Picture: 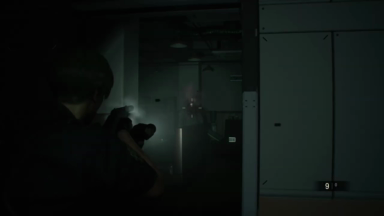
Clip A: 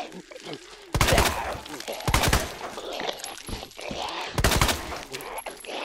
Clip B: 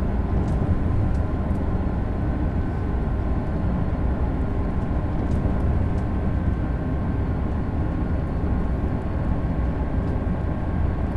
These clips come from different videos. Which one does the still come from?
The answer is A